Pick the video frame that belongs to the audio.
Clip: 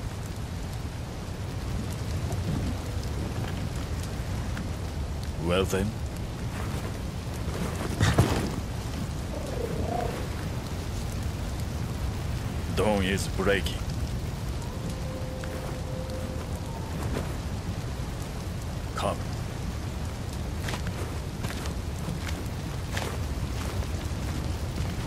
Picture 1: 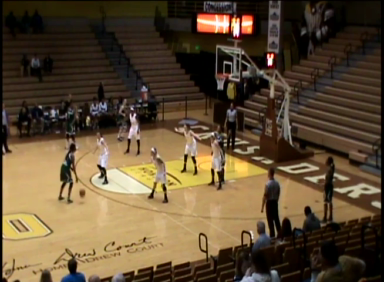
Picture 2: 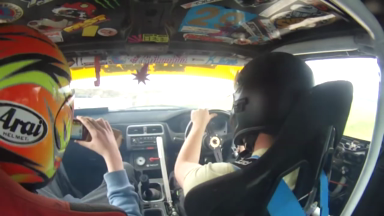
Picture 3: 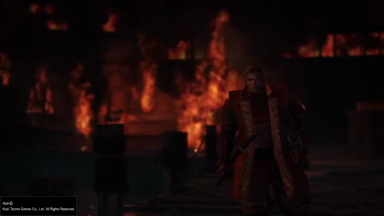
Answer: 3